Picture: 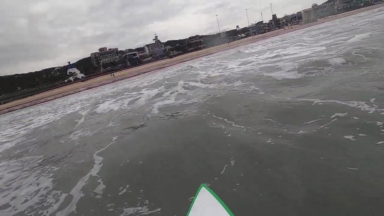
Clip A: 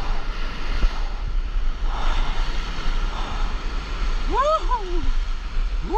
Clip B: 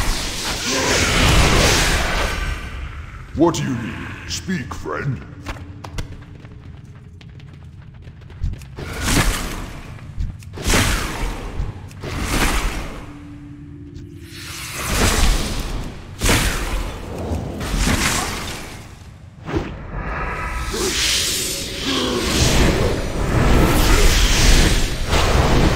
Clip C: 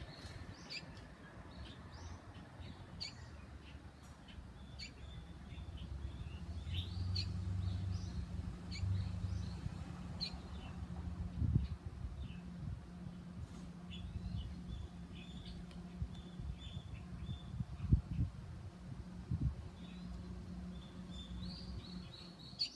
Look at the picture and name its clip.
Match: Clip A